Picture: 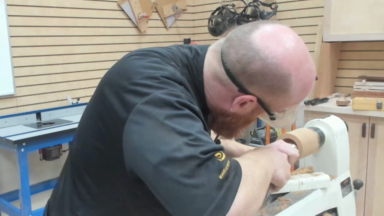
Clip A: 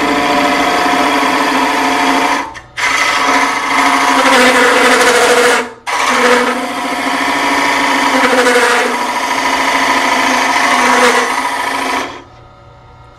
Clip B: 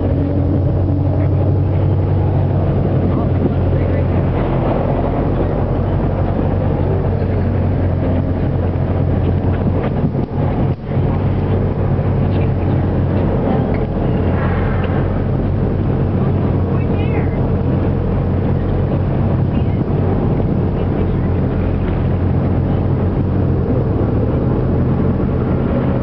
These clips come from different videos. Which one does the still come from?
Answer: A